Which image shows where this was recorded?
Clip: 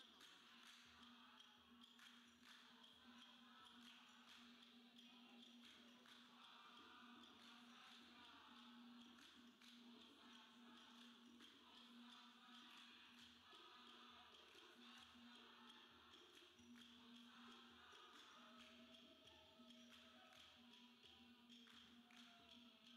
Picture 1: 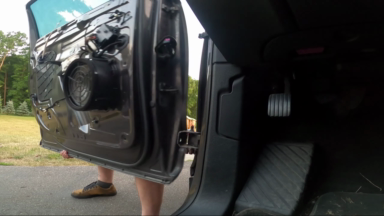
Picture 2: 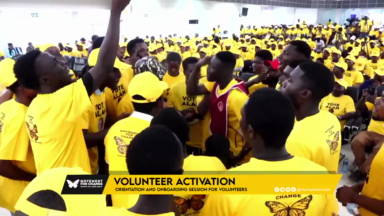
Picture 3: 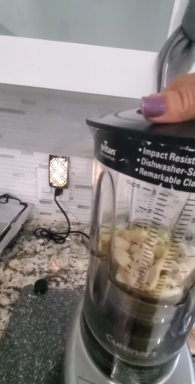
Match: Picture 2